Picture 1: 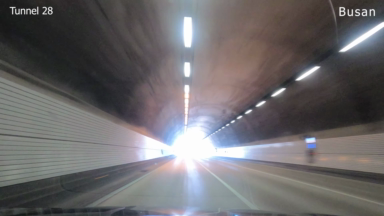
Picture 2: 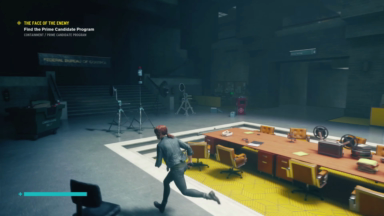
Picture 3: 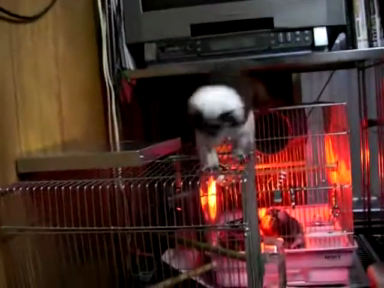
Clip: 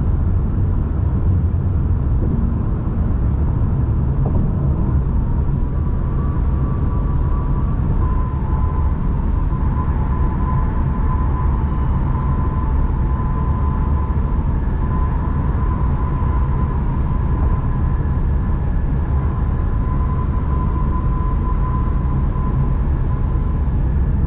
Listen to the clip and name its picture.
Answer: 1